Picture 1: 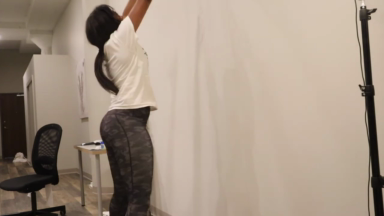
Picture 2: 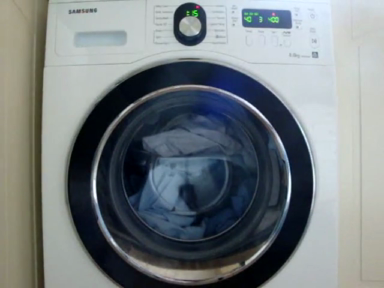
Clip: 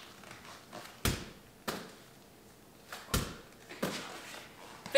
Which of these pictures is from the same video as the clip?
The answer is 1